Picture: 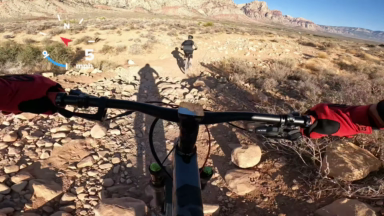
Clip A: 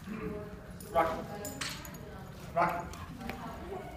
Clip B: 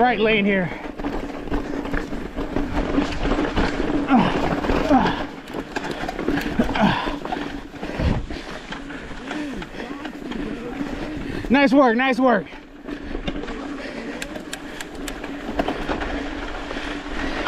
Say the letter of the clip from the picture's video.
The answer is B